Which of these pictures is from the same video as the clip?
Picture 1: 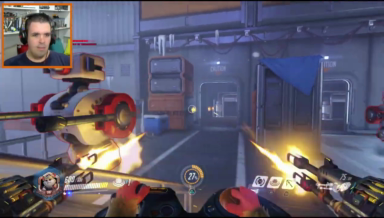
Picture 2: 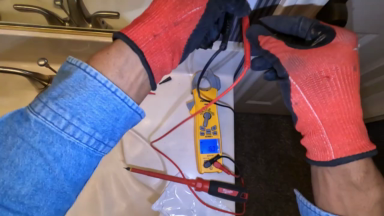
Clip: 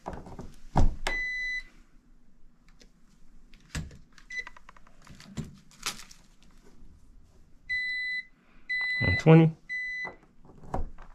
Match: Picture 2